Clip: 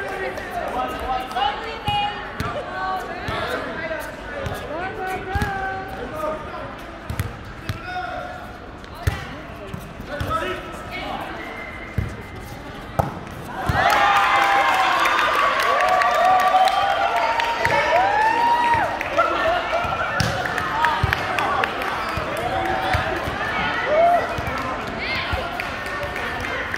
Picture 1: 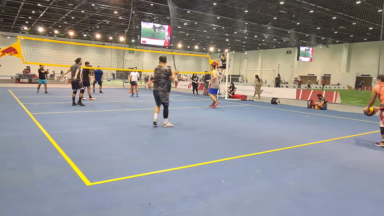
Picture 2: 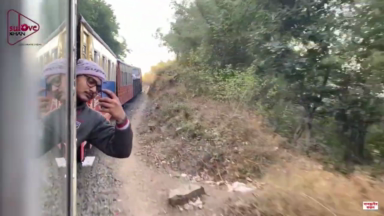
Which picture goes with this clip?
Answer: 1